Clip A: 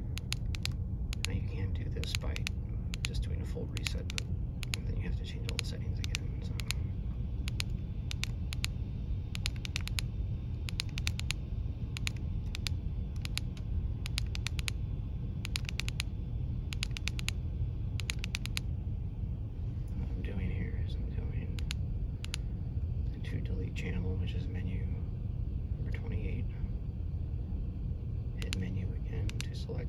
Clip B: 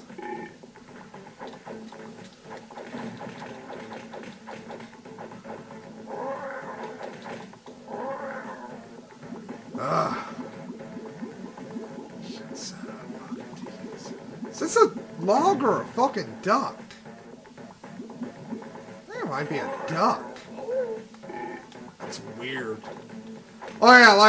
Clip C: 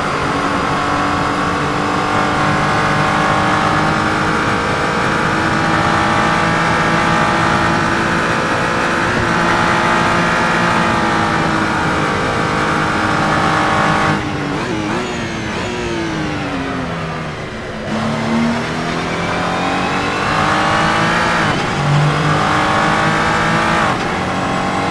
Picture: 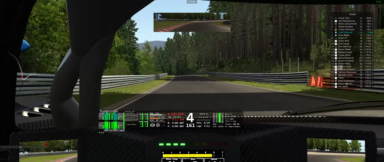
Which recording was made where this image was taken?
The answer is C